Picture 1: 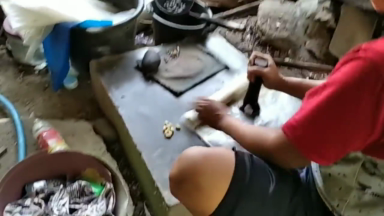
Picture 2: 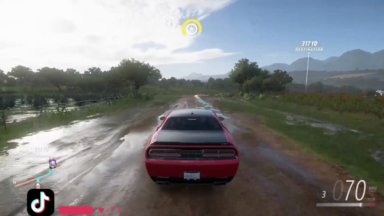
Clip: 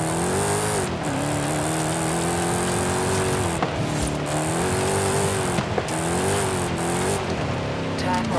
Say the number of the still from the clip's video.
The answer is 2